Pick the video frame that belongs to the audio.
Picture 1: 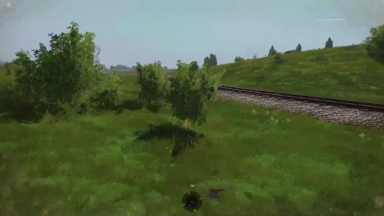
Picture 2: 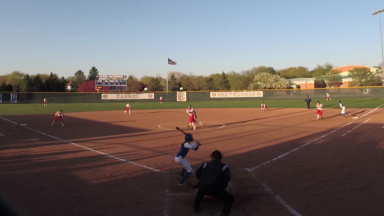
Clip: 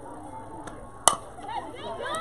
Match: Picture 2